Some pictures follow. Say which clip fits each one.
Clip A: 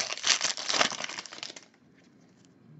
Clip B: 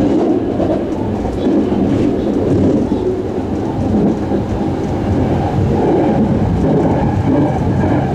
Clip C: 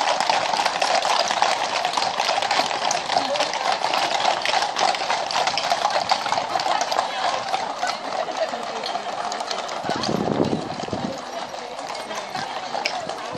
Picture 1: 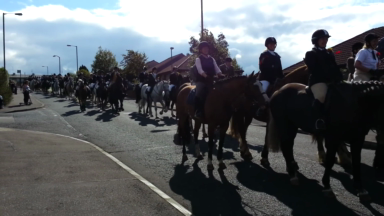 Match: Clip C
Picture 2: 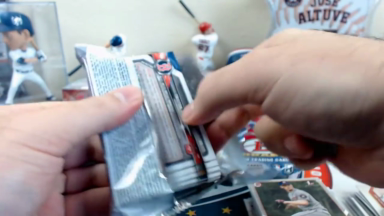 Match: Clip A